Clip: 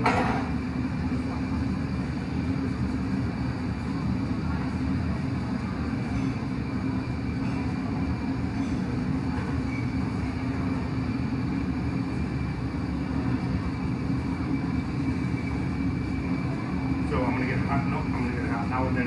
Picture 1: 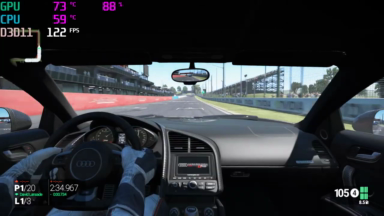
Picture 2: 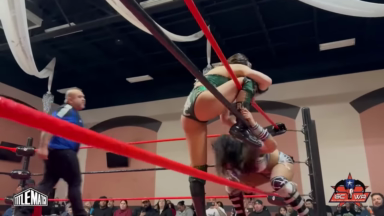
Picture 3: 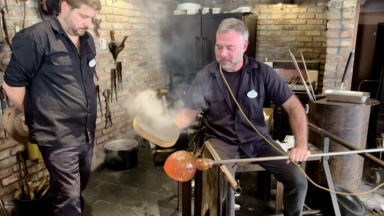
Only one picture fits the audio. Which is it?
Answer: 3